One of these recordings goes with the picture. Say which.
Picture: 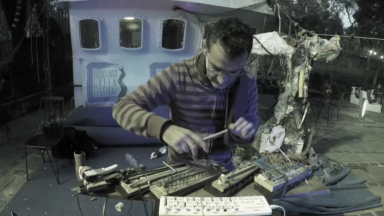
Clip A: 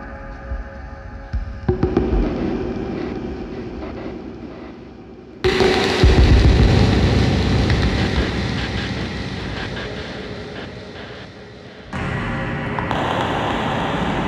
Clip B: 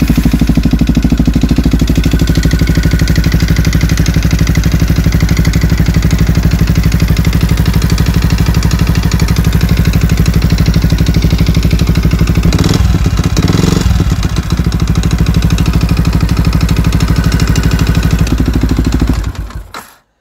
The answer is A